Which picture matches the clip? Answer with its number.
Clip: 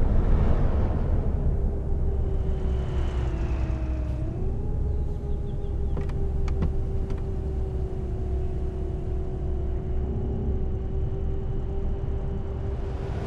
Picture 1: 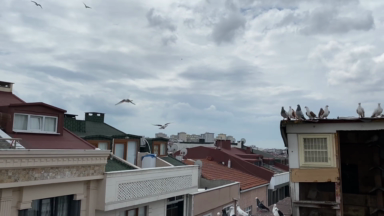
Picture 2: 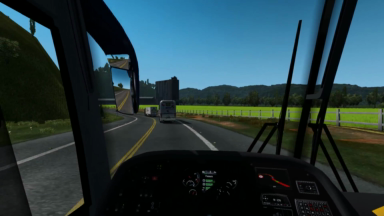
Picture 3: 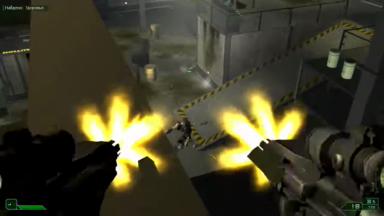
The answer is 2